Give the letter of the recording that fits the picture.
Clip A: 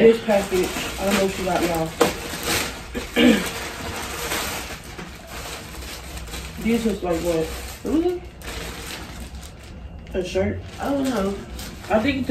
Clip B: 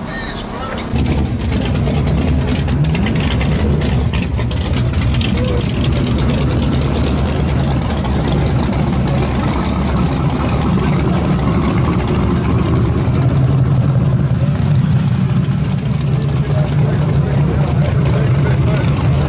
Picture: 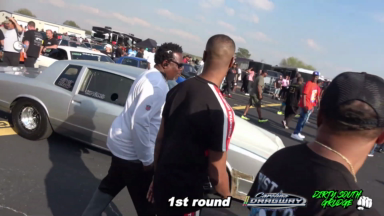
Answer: B